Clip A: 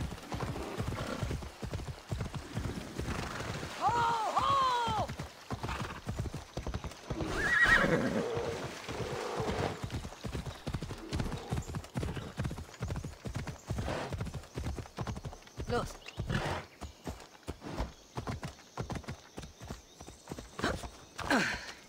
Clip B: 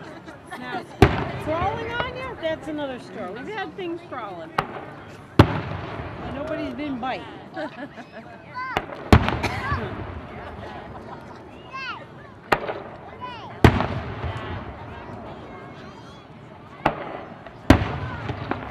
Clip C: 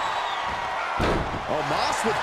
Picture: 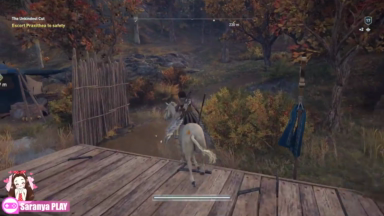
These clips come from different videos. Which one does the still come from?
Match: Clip A